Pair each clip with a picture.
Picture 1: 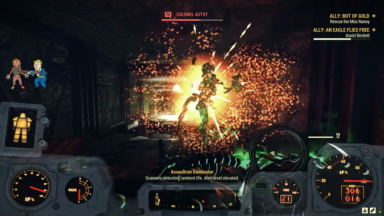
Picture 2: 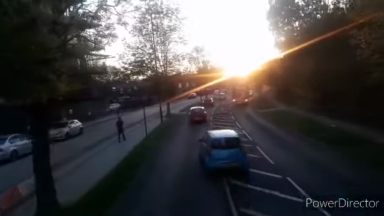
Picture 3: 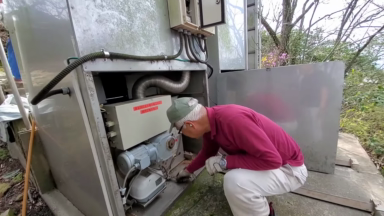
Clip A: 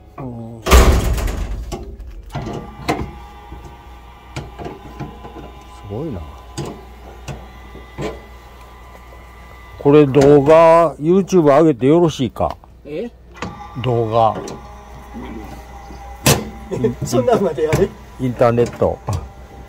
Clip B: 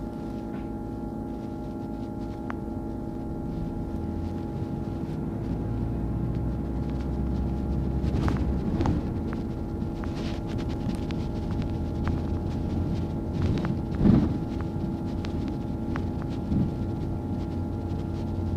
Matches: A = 3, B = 2